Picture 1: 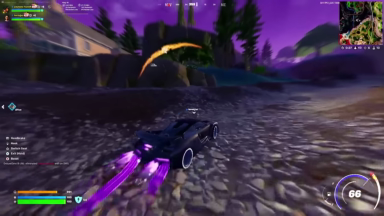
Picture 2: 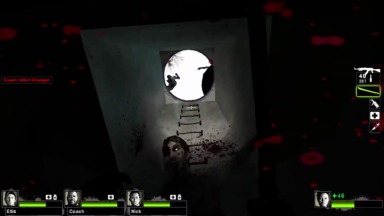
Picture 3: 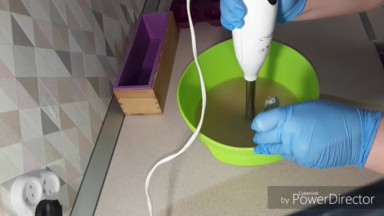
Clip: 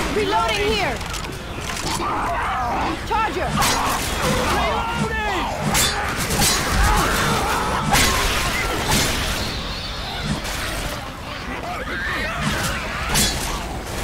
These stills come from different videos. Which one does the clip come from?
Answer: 2